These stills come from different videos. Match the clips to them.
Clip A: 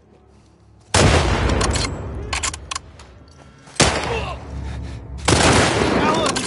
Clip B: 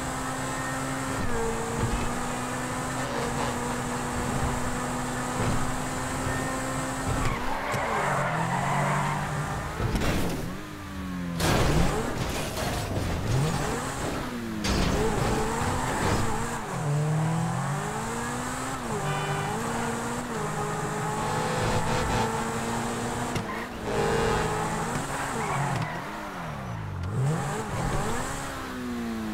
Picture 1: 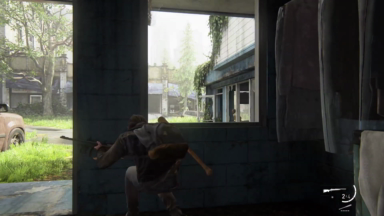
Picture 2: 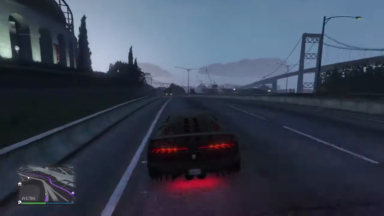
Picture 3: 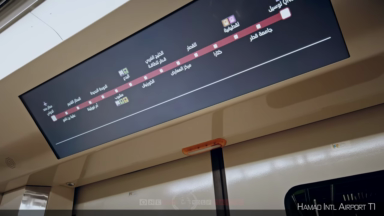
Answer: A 1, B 2